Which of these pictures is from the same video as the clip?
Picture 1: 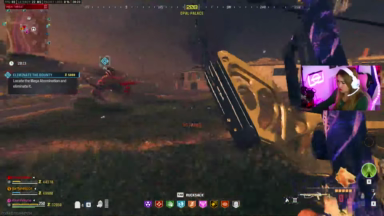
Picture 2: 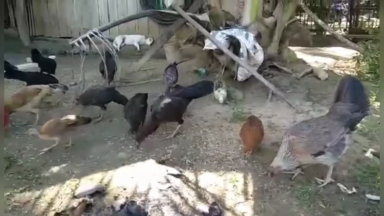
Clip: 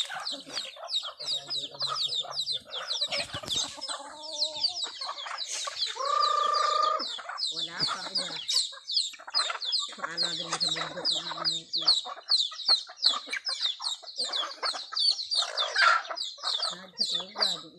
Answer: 2